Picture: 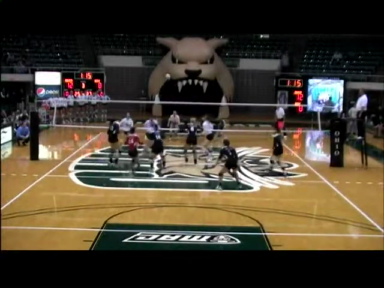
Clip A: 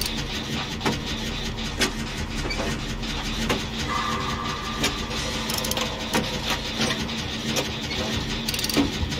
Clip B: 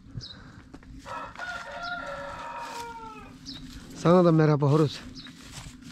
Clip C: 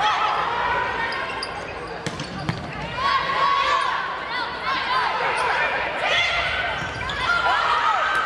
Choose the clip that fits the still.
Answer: C